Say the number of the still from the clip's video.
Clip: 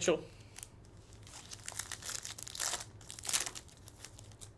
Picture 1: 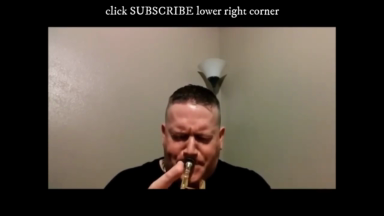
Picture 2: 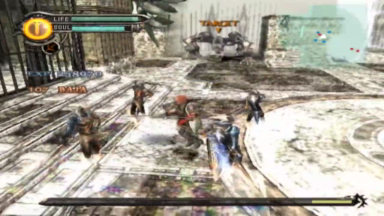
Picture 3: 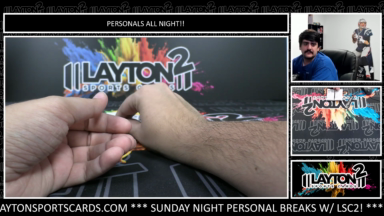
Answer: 3